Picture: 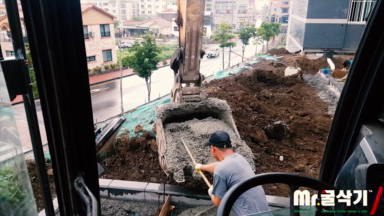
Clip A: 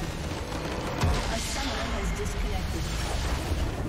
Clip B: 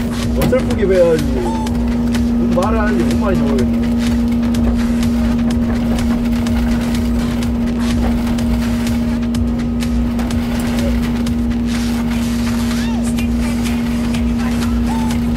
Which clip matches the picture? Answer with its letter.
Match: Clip B